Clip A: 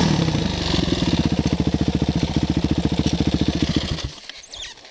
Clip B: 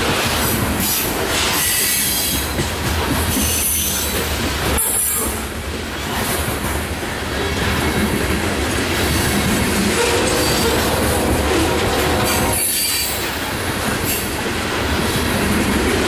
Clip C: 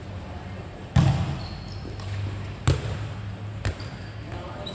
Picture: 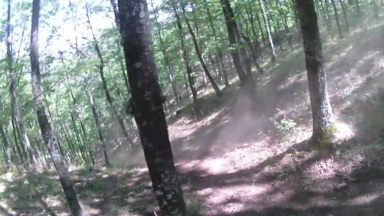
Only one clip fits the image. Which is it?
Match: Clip A